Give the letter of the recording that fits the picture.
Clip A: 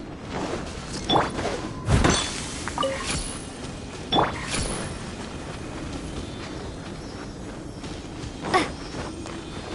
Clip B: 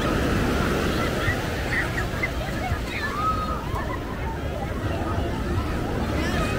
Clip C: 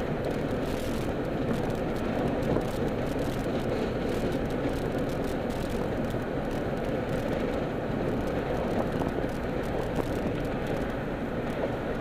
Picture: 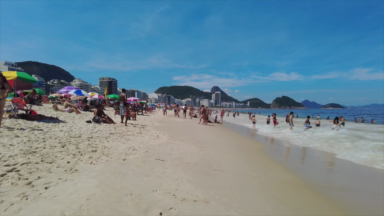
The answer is B